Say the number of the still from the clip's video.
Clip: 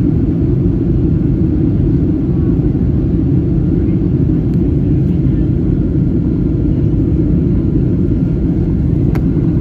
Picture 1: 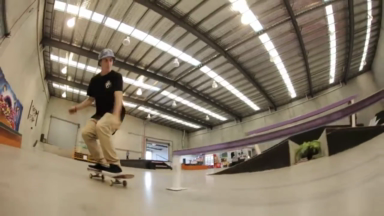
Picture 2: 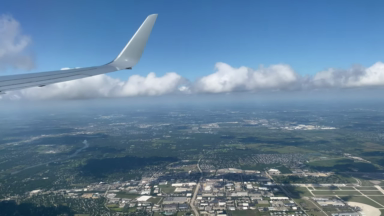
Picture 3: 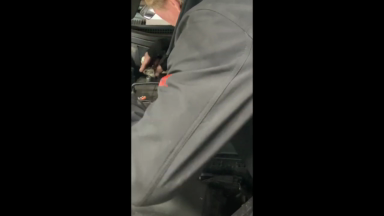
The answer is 2